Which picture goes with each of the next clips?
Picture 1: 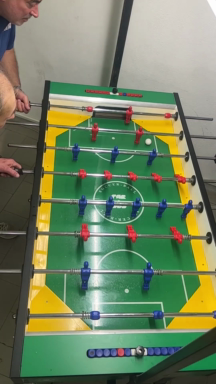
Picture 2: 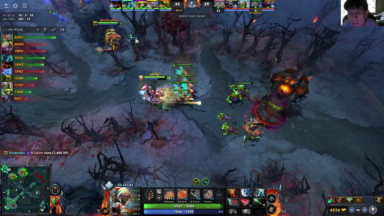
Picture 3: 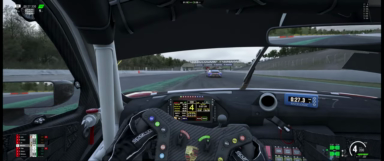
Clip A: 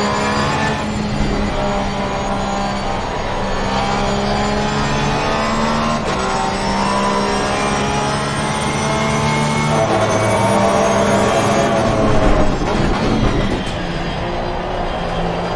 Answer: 3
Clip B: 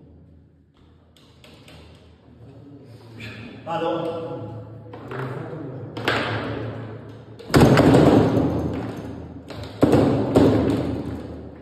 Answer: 1